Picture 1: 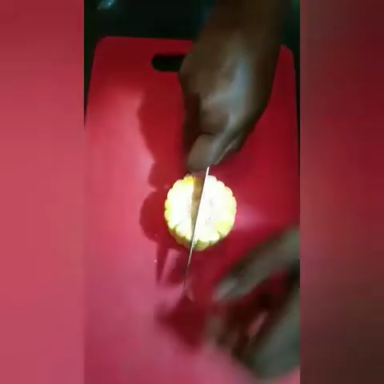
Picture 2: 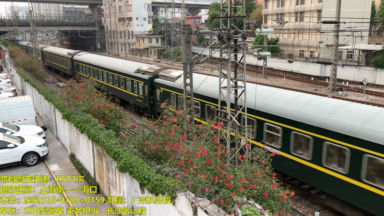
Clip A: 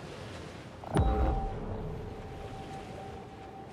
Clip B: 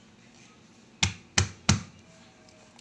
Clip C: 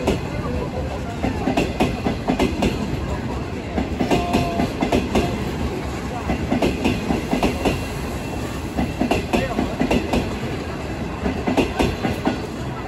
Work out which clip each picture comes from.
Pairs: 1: B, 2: C